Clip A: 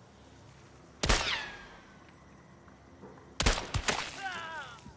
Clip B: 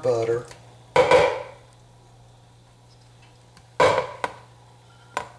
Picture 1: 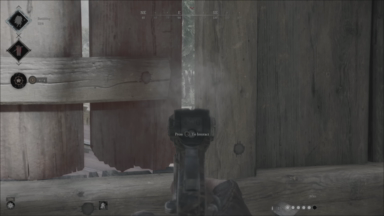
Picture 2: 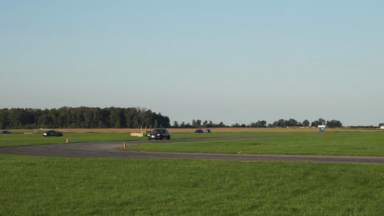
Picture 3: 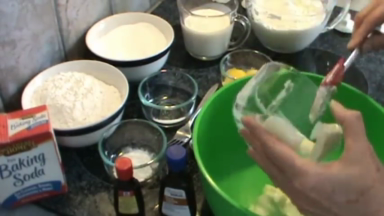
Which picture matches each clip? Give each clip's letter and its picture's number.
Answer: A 1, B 3